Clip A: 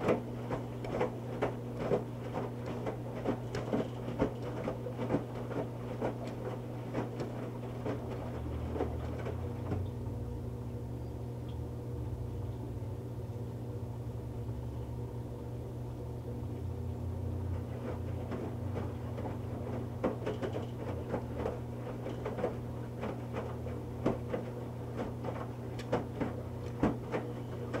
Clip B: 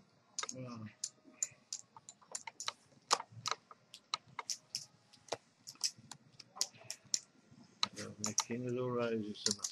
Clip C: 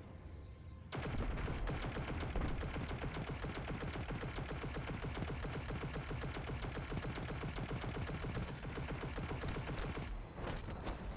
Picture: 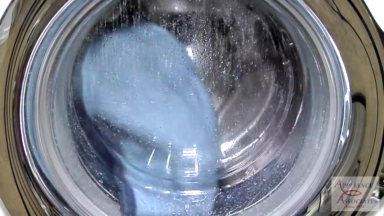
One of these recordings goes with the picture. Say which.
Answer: A